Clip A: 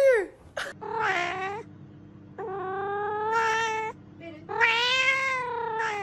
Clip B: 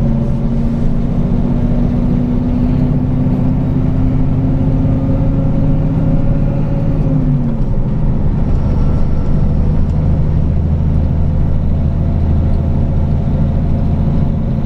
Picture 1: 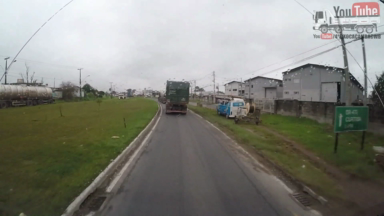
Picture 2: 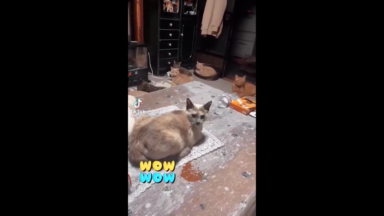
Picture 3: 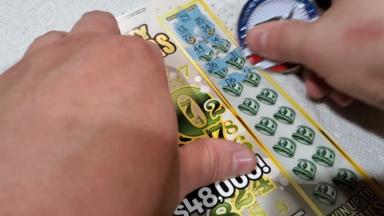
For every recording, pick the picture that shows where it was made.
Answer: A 2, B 1